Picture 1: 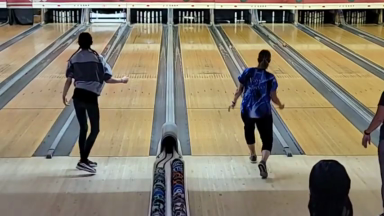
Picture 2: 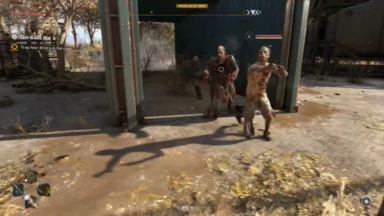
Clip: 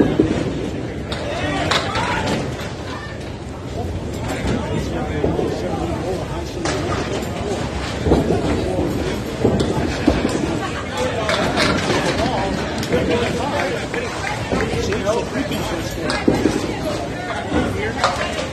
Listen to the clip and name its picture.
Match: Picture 1